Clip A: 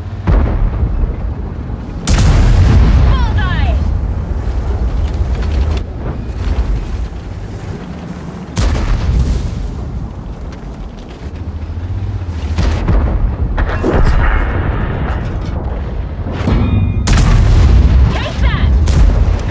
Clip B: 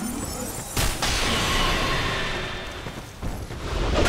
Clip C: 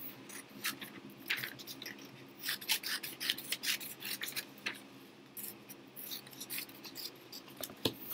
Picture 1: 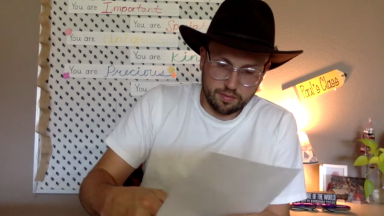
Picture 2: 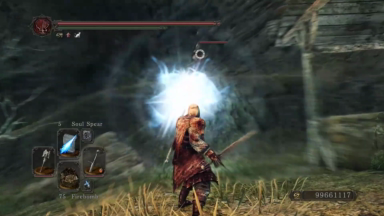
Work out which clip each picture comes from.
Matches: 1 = C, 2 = B